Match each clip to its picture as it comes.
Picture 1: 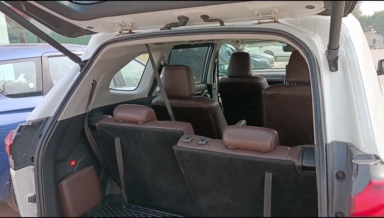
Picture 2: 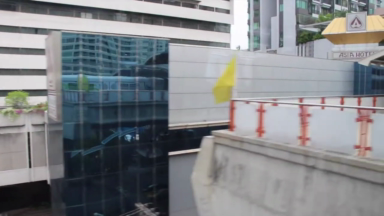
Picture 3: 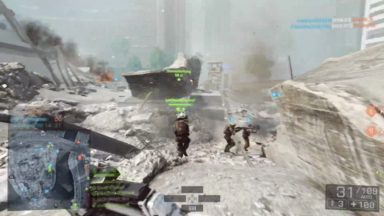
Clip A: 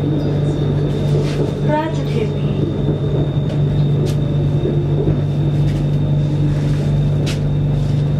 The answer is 2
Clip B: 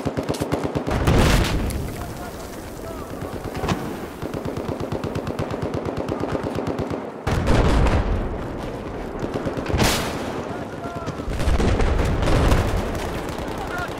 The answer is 3